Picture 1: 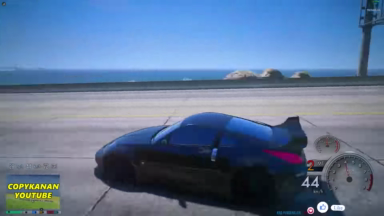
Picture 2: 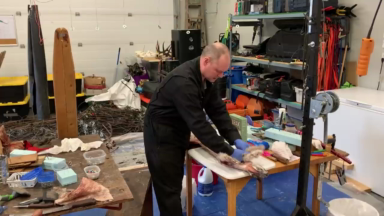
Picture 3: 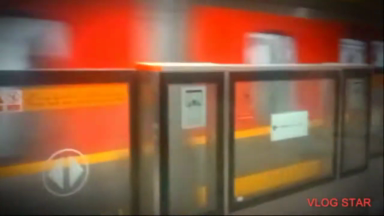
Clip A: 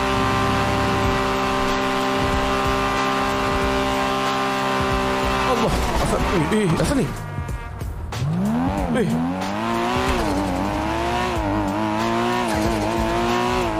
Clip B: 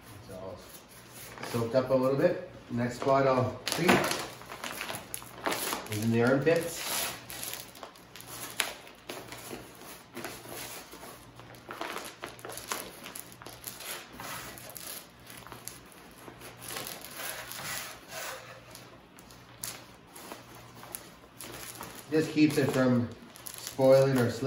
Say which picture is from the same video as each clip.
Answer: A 1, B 2